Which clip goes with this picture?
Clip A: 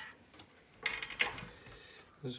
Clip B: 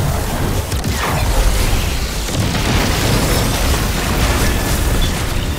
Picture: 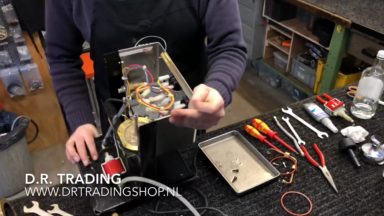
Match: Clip A